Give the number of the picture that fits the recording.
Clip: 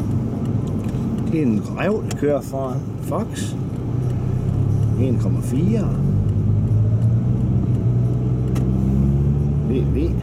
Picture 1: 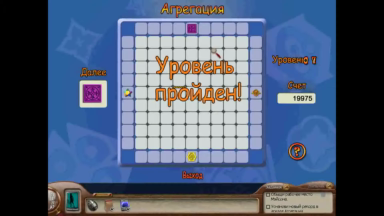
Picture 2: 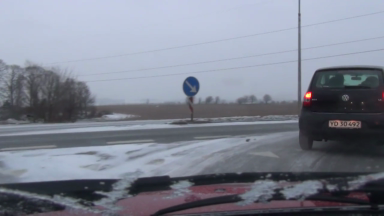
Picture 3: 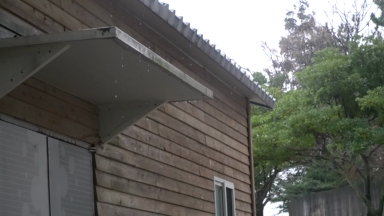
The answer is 2